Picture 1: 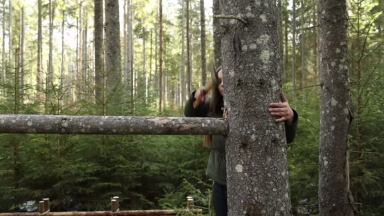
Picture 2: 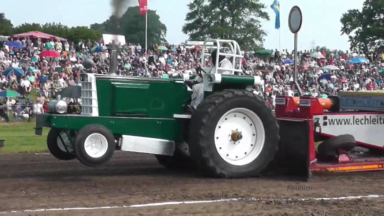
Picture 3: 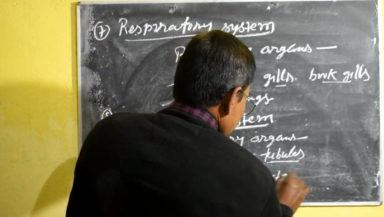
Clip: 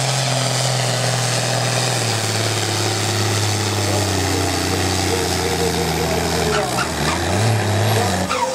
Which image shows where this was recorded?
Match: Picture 2